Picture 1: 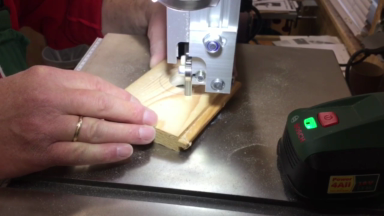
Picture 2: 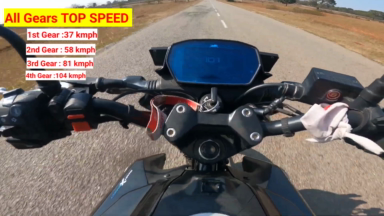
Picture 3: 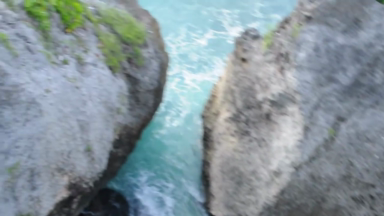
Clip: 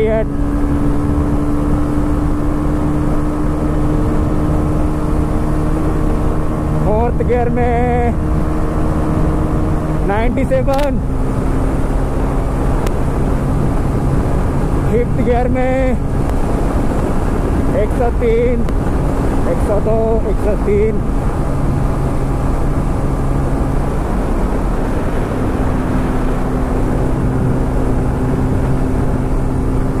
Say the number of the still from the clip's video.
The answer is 2